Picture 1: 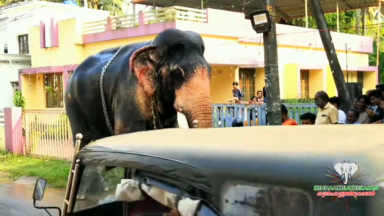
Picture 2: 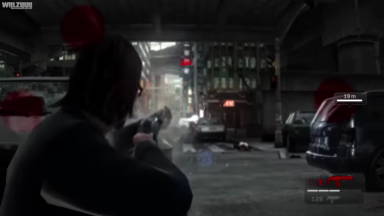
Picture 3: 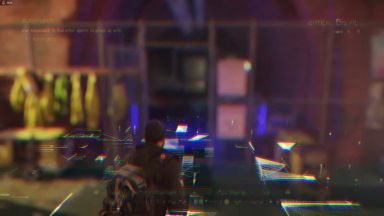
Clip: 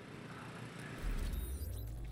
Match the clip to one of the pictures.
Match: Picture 3